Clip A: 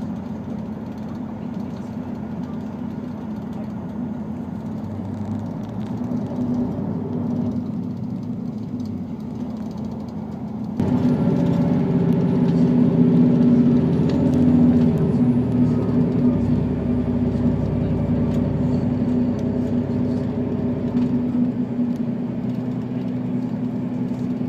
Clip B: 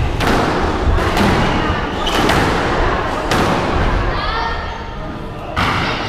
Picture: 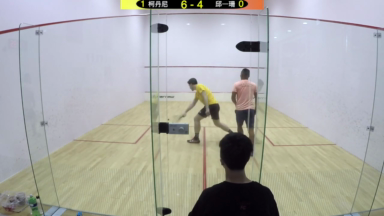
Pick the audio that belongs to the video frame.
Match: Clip B